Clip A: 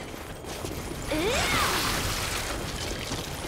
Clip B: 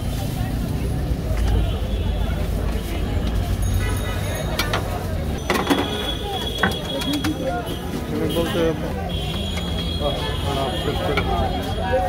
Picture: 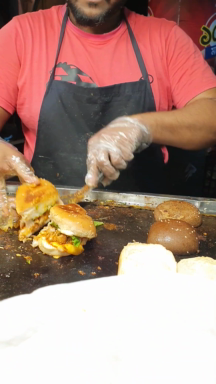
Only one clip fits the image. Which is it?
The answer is B